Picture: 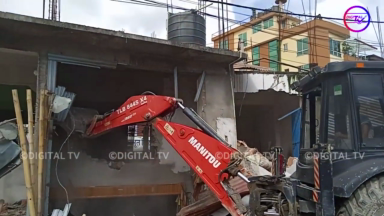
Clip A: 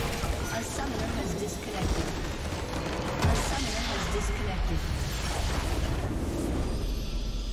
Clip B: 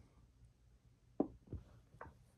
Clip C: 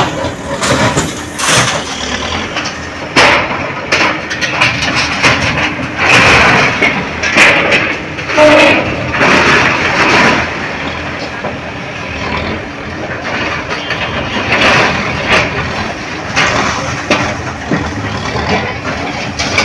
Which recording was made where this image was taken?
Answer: C